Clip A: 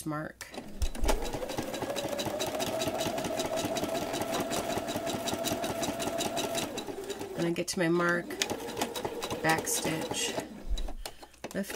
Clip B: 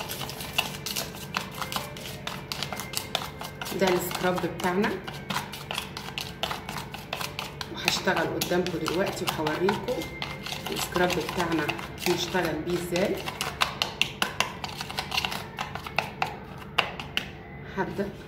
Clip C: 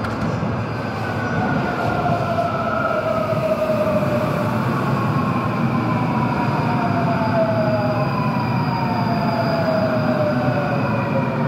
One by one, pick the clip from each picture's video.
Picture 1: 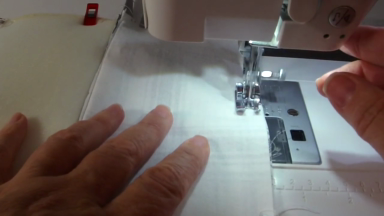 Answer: A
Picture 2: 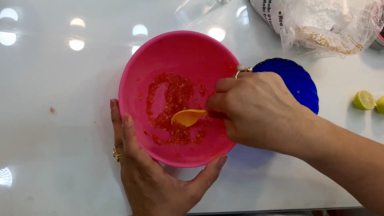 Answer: B